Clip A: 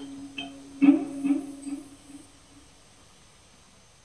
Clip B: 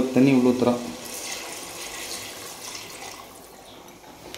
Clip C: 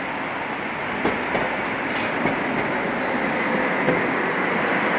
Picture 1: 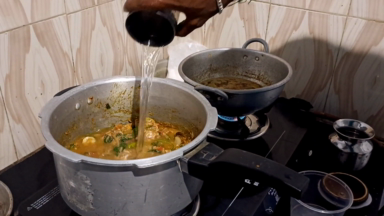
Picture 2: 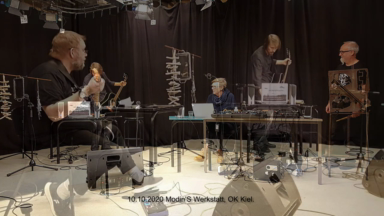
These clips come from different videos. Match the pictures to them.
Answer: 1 B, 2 A